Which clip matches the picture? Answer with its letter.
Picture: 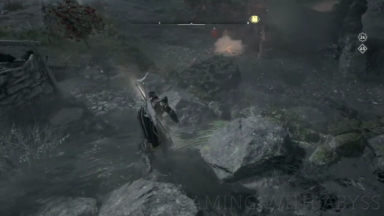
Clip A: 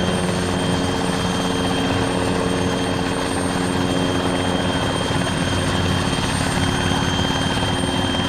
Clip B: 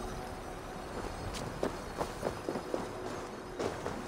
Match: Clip B